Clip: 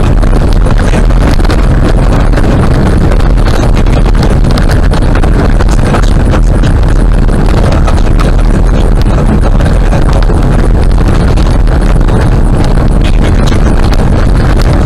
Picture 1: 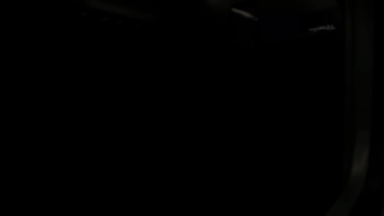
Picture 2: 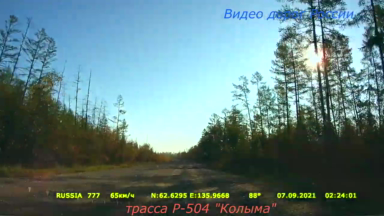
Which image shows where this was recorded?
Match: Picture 2